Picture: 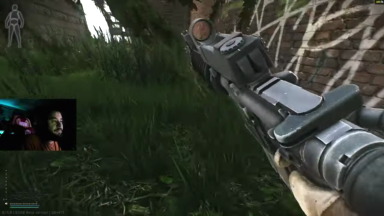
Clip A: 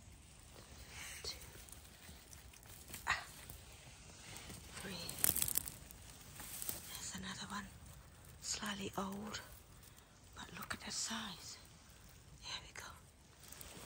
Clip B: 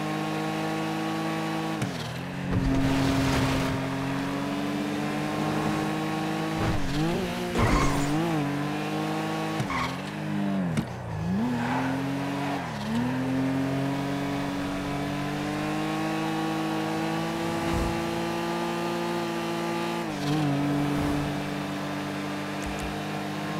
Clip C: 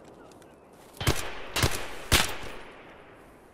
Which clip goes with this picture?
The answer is C